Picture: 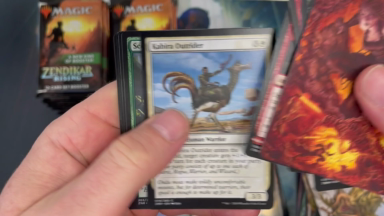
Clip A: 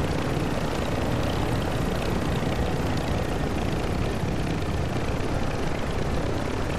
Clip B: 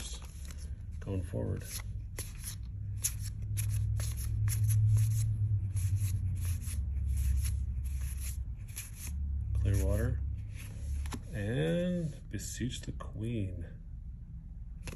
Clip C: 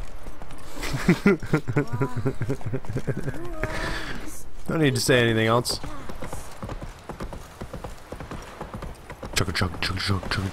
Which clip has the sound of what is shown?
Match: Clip B